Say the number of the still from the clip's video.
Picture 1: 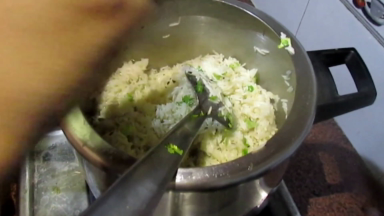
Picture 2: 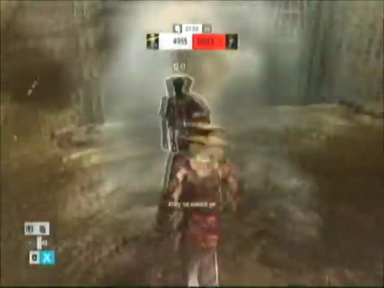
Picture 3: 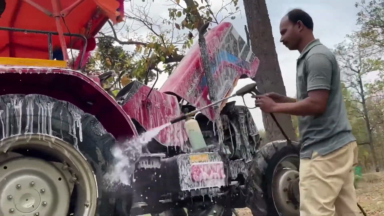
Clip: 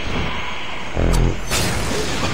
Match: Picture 2